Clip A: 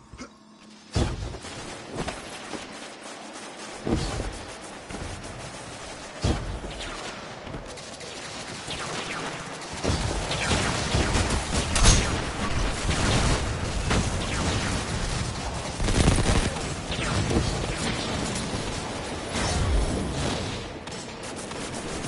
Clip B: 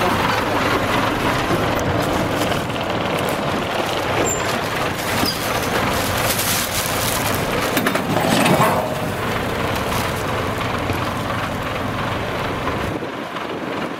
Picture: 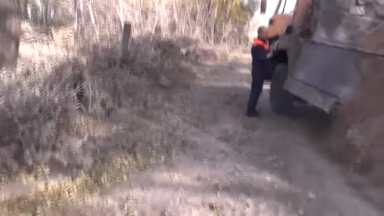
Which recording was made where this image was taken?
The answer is B